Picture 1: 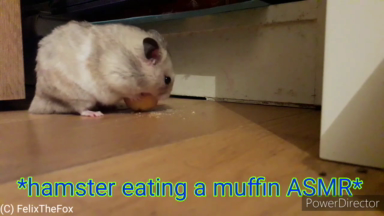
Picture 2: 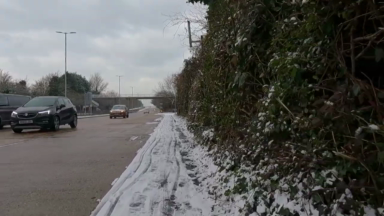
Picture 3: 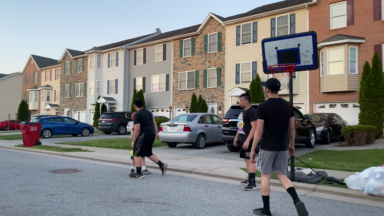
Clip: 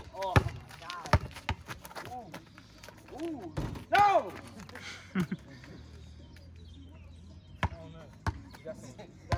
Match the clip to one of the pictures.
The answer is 3